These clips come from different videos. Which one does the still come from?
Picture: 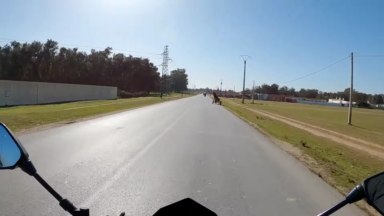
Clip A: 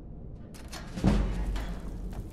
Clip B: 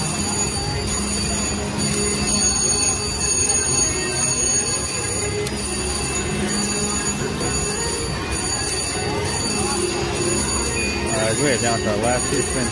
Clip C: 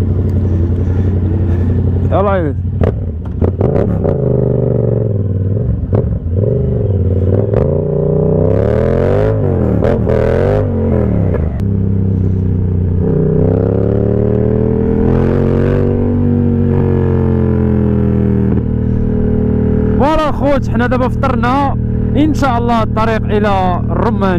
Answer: C